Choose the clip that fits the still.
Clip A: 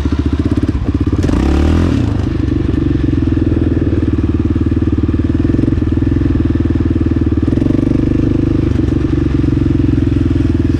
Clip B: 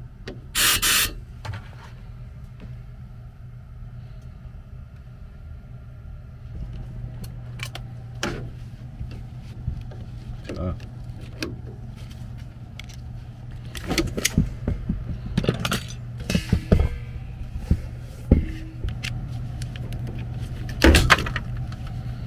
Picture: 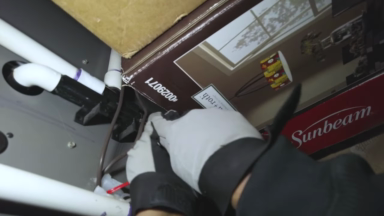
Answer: B